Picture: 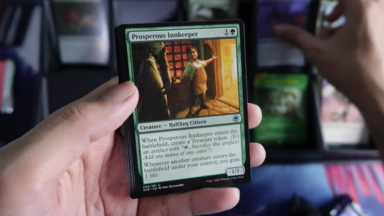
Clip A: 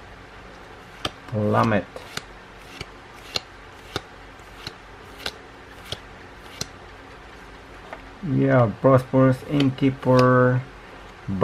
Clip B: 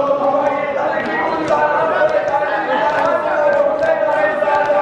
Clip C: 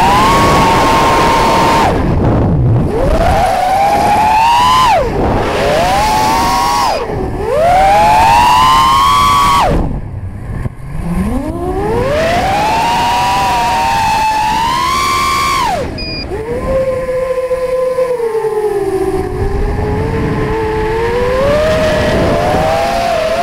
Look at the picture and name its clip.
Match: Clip A